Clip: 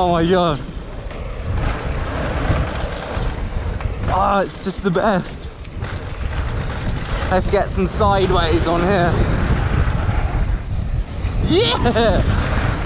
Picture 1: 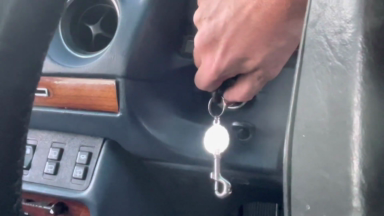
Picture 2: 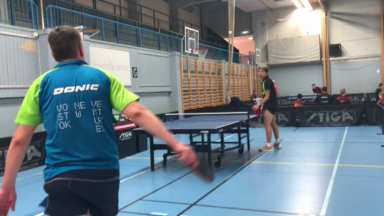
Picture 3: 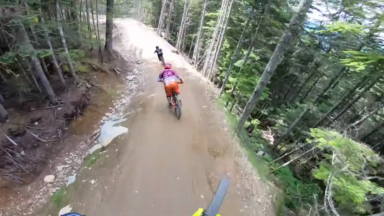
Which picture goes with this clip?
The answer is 3